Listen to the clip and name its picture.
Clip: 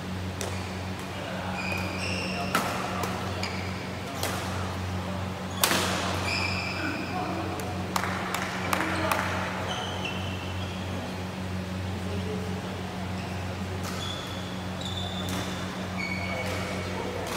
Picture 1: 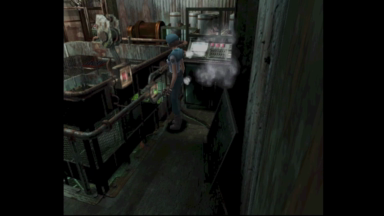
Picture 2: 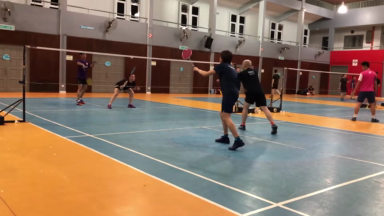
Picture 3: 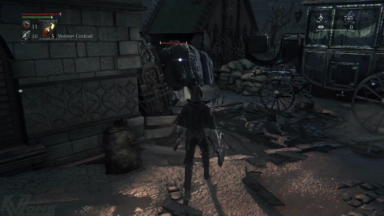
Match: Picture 2